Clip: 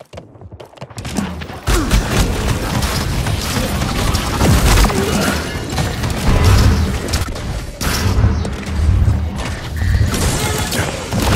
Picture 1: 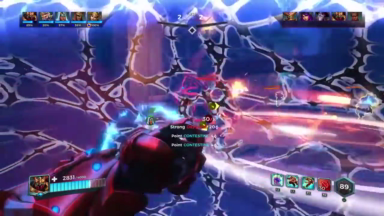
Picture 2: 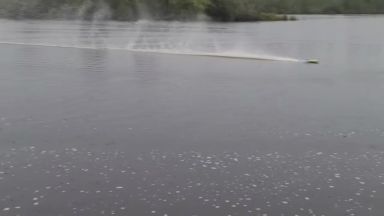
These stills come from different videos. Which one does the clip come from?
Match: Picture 1